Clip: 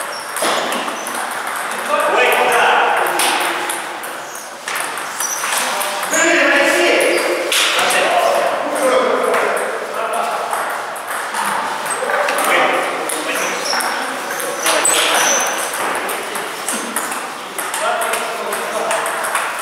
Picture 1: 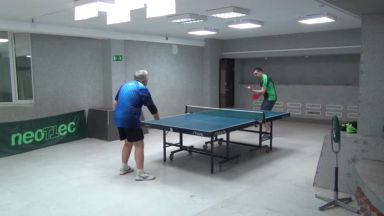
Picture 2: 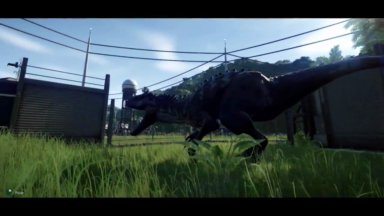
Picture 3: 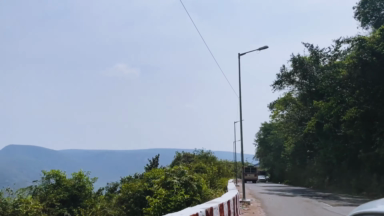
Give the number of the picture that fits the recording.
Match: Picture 1